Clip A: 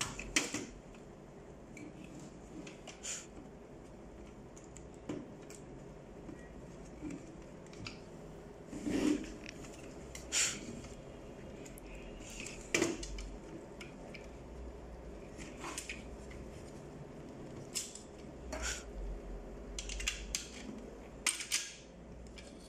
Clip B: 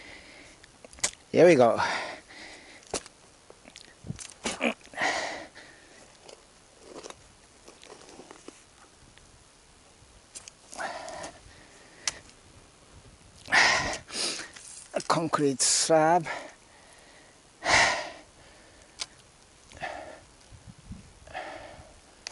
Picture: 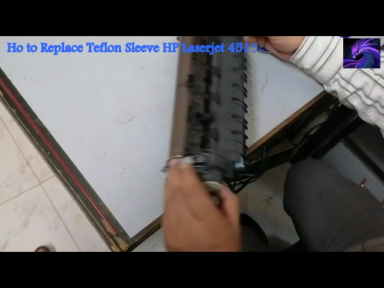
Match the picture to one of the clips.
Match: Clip A